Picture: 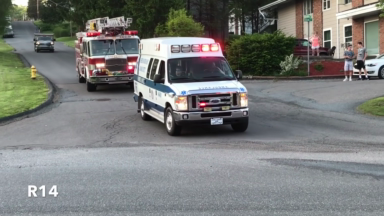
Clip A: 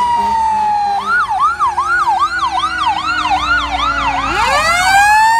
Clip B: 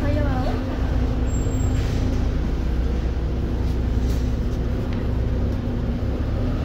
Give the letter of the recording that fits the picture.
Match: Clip A